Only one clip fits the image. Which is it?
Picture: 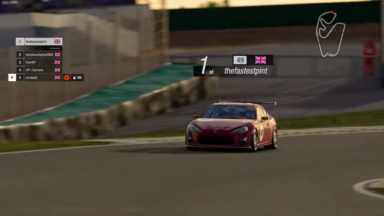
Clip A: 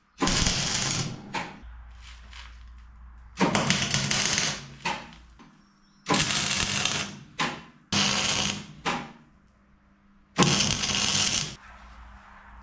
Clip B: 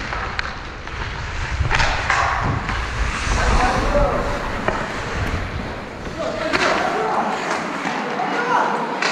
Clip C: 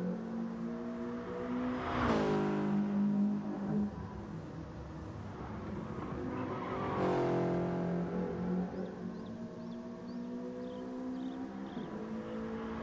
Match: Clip C